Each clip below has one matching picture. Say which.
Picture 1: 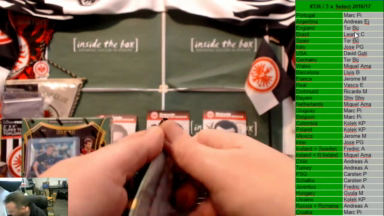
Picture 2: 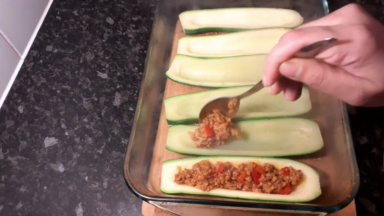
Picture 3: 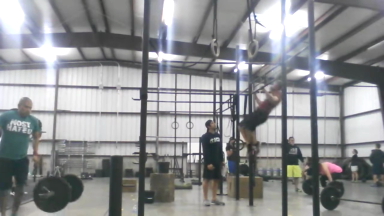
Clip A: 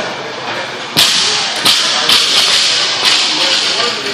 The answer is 3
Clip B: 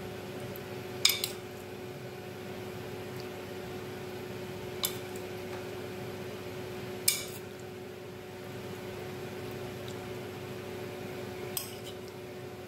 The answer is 2